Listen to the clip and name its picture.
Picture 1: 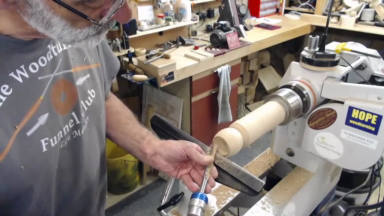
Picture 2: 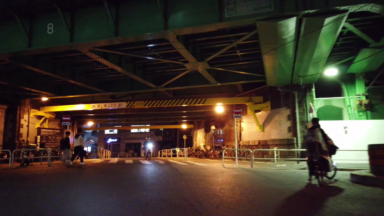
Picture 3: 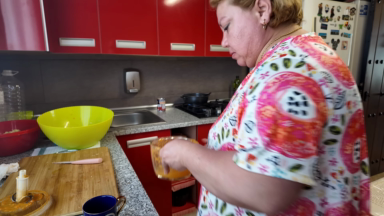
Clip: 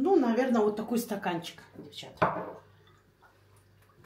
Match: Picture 3